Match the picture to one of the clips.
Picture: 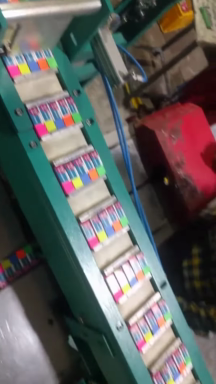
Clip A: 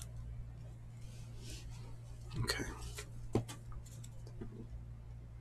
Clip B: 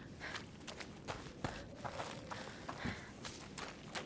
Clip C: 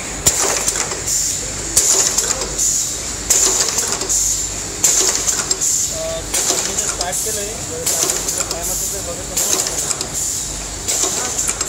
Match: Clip C